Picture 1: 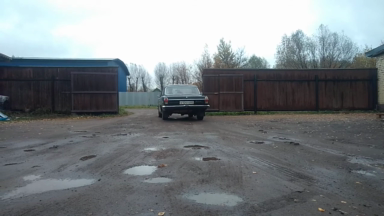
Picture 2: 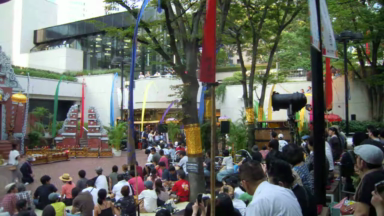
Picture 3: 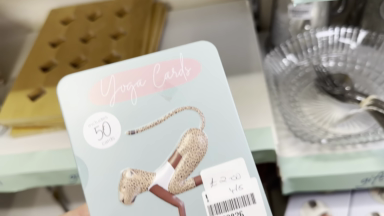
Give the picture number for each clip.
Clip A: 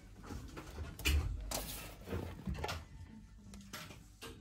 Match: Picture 3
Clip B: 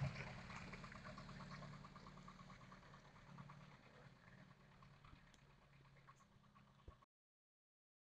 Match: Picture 1